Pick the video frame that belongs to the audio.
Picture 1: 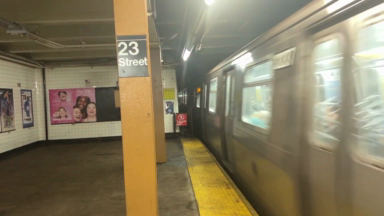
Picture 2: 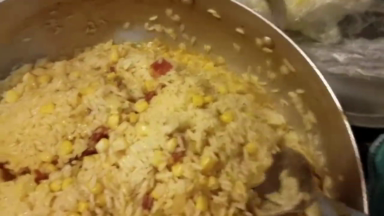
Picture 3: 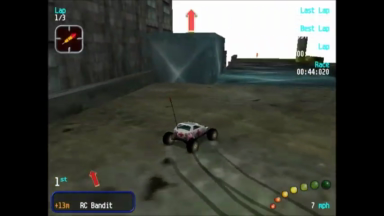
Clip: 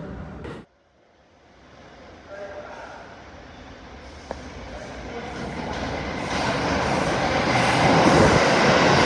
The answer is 1